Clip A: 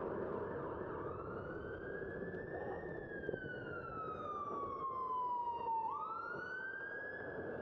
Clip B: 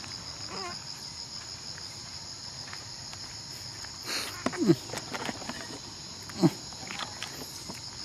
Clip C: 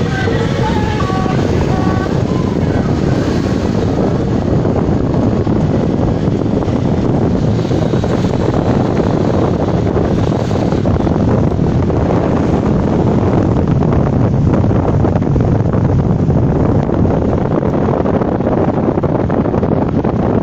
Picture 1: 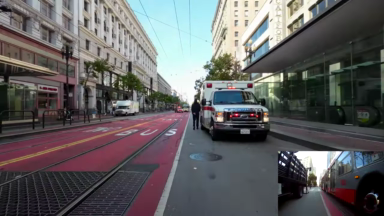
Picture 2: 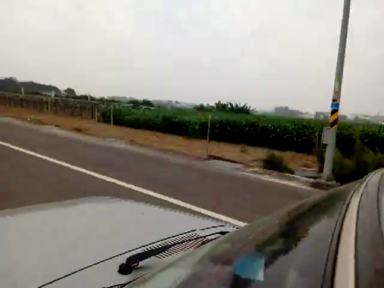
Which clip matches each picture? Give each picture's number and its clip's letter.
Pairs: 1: A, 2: C